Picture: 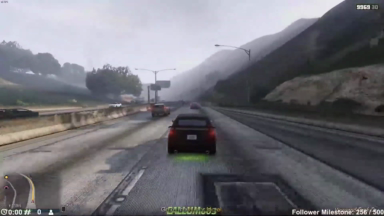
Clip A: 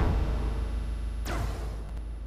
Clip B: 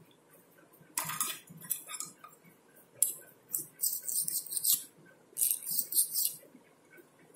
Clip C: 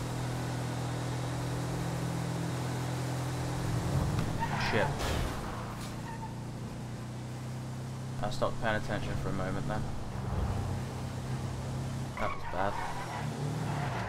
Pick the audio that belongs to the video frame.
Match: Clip C